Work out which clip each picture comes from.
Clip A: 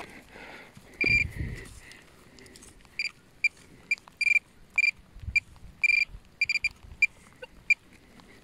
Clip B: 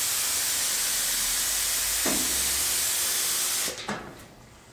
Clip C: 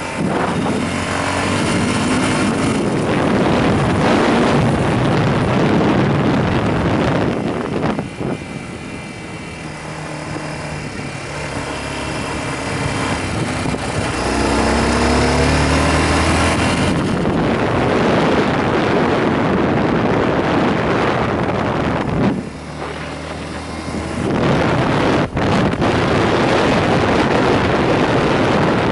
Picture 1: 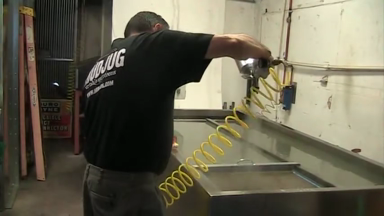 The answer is B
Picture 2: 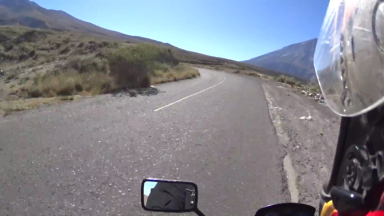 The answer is C